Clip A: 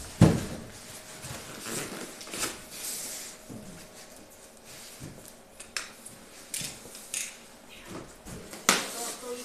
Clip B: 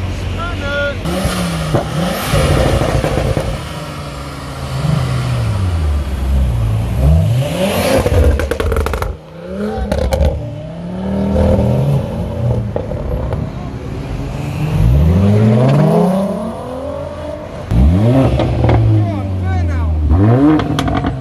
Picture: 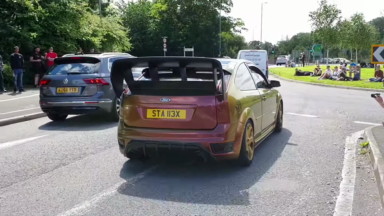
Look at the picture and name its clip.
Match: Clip B